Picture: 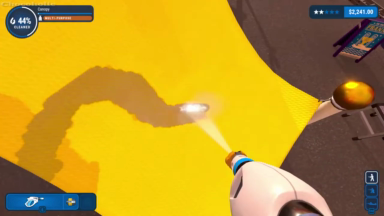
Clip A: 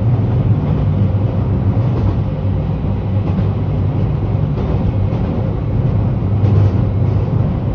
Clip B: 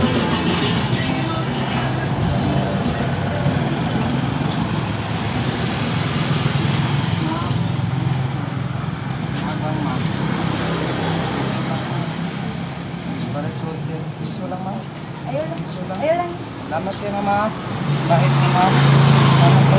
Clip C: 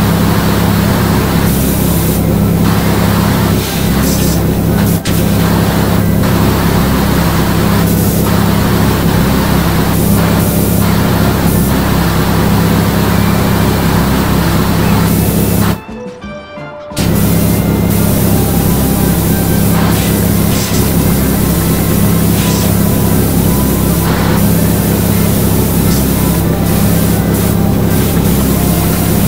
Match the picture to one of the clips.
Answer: C